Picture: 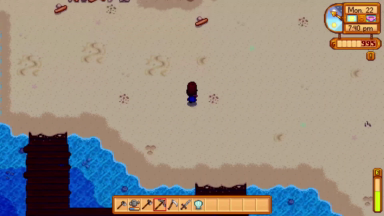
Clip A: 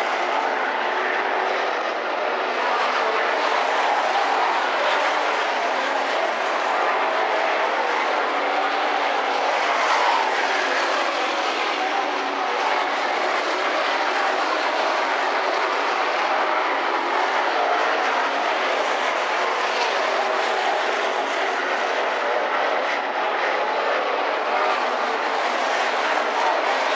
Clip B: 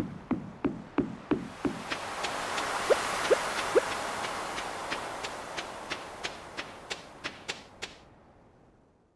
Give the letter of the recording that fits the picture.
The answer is B